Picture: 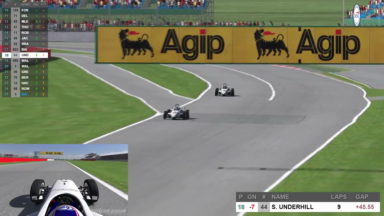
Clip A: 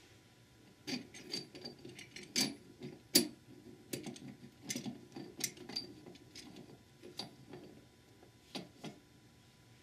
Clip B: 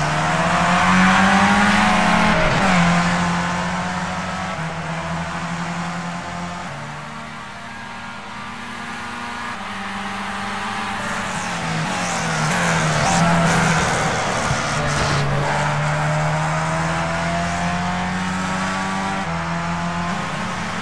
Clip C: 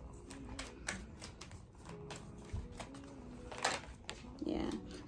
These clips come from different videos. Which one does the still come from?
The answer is B